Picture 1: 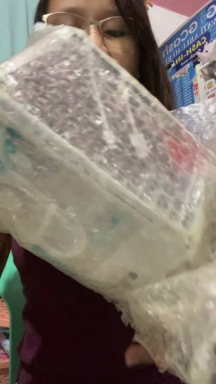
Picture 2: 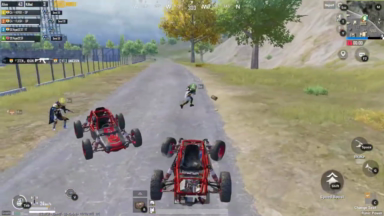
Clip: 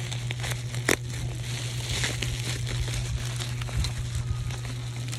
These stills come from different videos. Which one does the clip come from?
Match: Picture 1